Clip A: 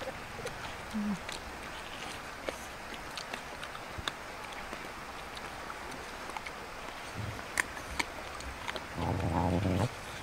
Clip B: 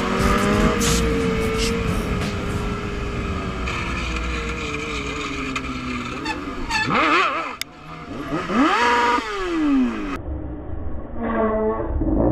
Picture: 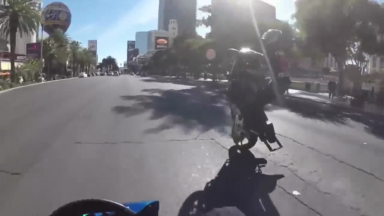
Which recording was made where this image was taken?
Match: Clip B